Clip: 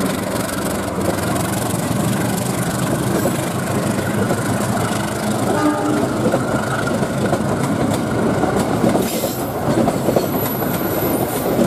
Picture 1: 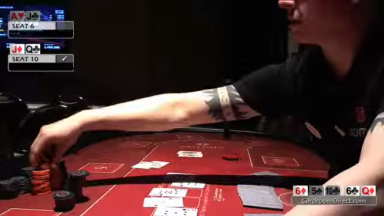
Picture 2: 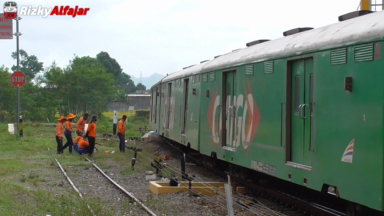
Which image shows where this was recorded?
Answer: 2